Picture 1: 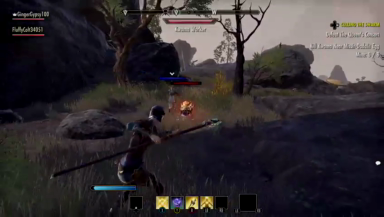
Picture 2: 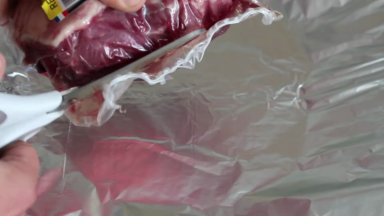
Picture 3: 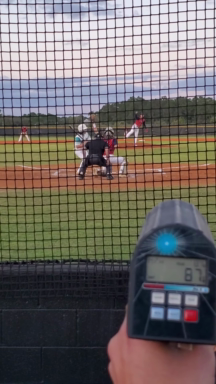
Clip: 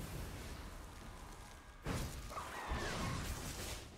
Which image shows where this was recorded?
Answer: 1